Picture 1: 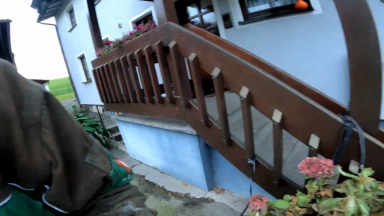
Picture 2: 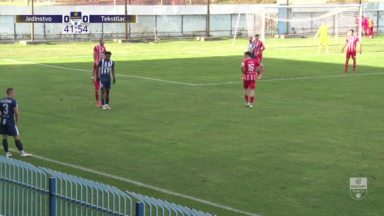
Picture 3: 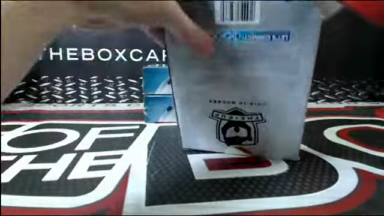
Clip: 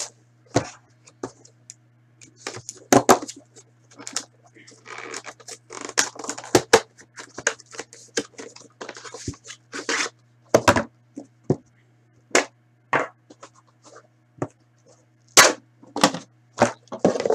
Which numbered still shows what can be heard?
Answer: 3